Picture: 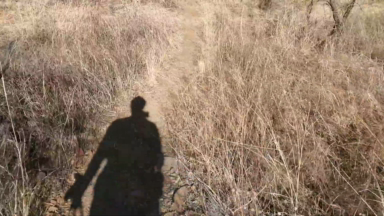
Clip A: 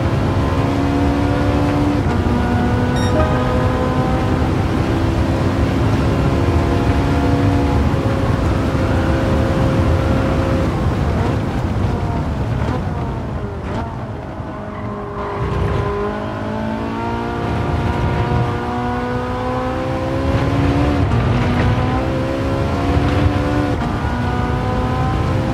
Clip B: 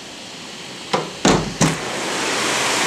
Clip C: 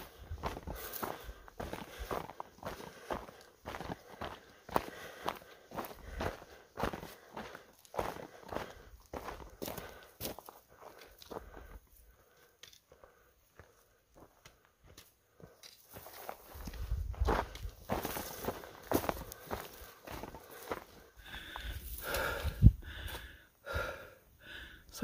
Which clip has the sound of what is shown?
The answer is C